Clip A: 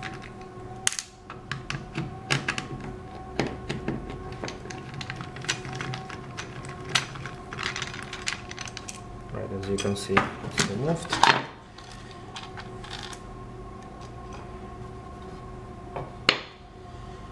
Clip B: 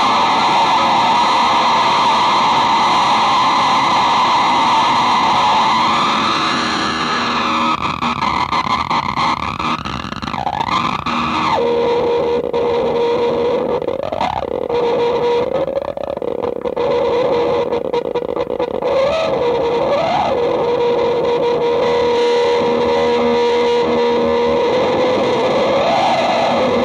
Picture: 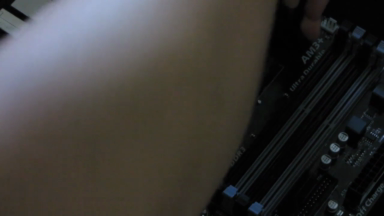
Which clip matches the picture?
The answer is A